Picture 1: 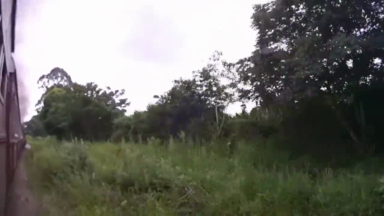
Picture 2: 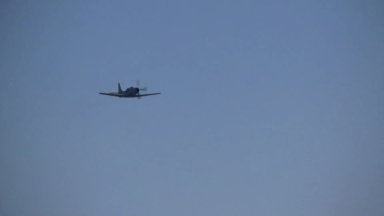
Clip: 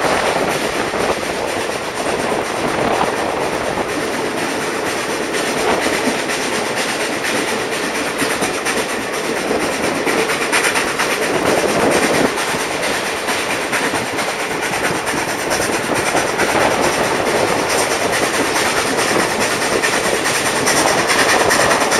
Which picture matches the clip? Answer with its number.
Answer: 1